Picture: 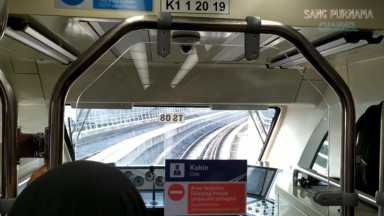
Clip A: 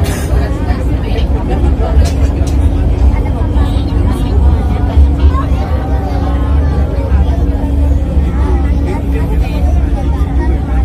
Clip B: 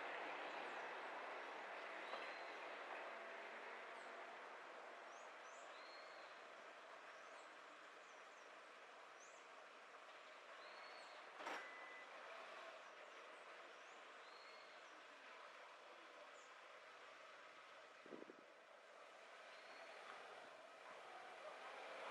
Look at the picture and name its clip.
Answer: A